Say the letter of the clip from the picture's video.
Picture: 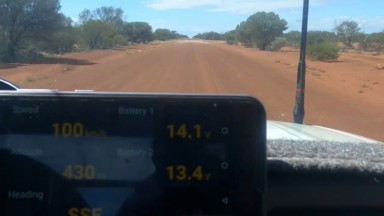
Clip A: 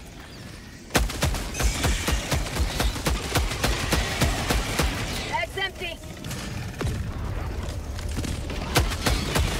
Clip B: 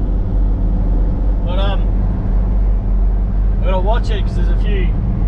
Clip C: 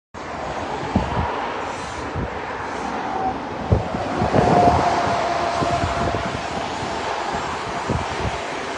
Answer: B